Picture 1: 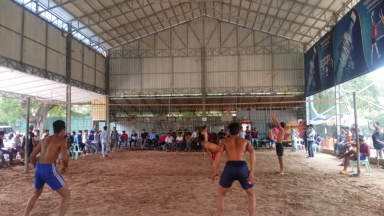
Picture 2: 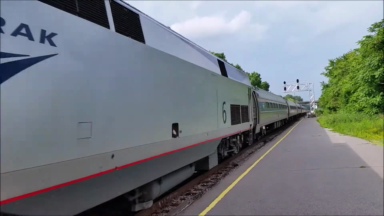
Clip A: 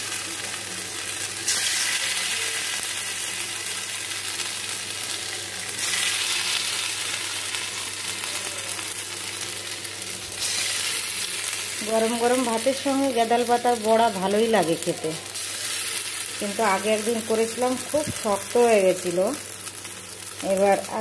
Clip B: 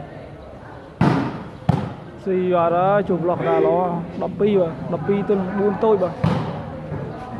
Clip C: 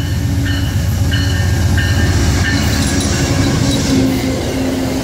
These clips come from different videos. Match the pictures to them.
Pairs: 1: B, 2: C